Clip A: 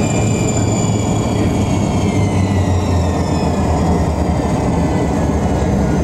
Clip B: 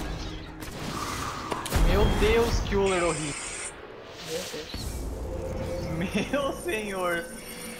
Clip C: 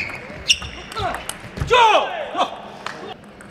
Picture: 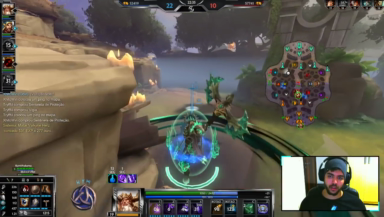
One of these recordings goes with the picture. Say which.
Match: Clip B